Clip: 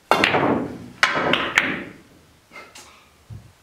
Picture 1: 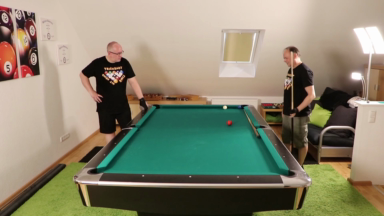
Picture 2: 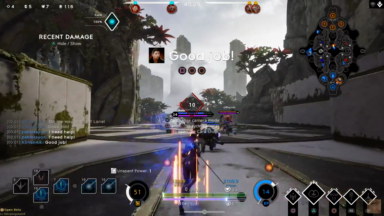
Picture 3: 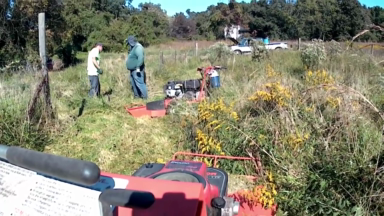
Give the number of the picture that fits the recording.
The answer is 1